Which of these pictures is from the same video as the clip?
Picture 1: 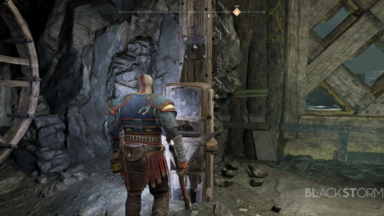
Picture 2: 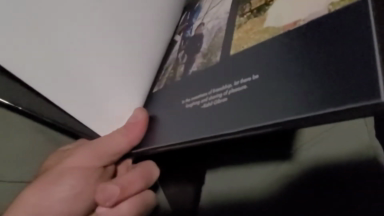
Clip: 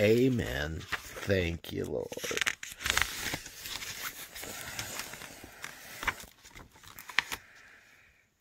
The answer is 2